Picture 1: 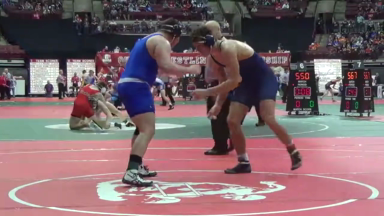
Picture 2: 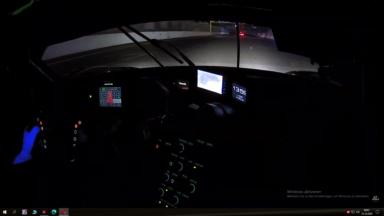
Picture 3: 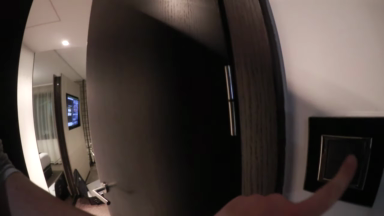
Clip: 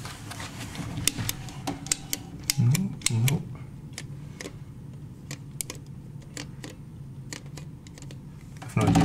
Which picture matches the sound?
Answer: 3